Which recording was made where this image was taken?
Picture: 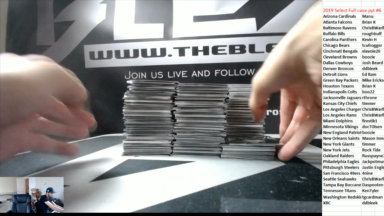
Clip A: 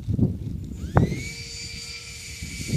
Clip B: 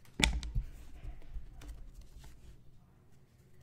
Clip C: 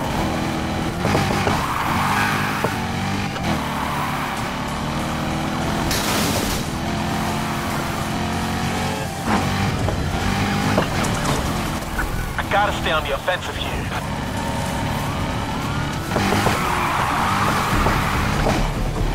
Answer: B